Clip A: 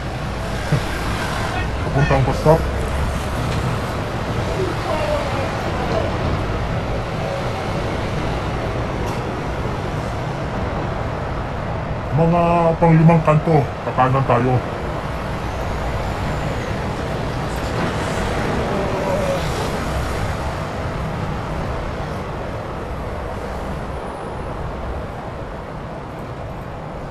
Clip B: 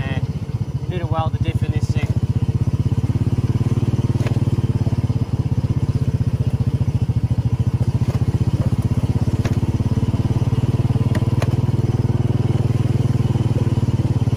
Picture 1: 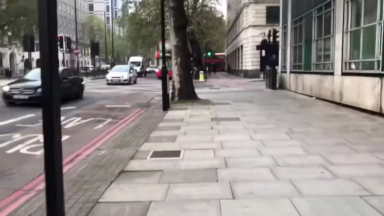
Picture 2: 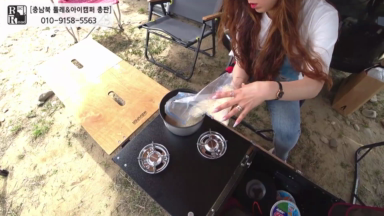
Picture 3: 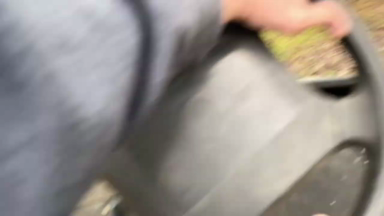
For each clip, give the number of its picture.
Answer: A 1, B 3